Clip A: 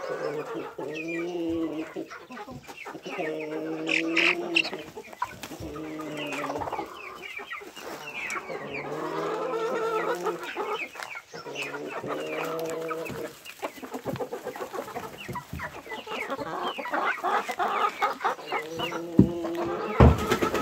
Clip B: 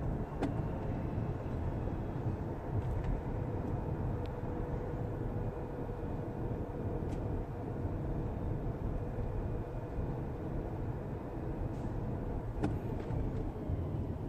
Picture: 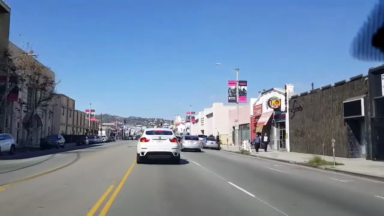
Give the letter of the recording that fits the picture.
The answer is B